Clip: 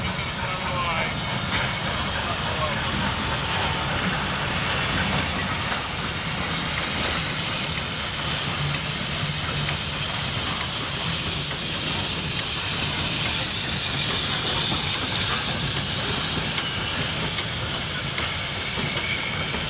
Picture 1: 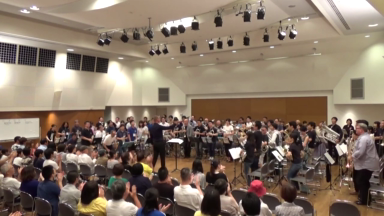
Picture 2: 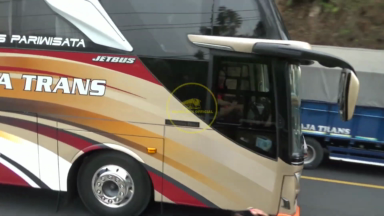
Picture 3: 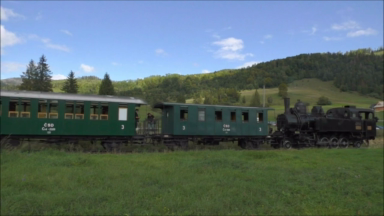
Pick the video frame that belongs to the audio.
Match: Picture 3